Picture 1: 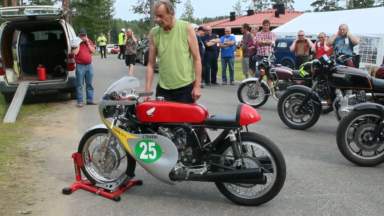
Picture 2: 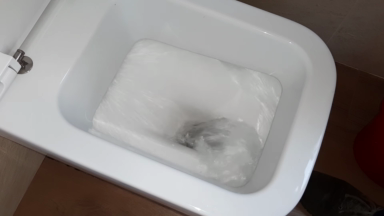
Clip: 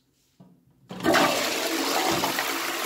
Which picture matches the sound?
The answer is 2